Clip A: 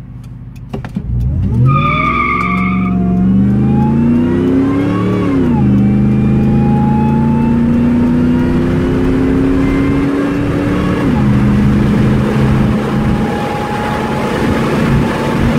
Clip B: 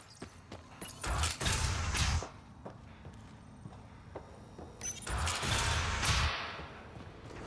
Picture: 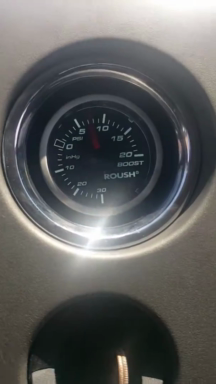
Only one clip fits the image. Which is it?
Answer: A